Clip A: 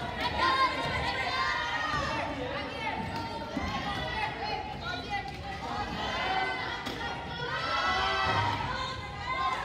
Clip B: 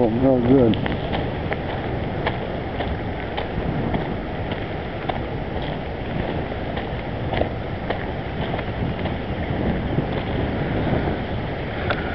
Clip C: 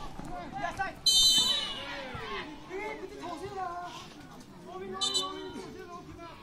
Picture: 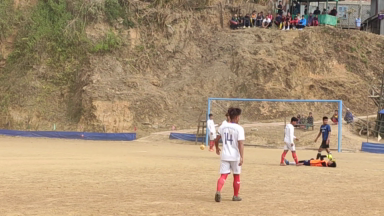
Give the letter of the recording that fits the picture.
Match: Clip C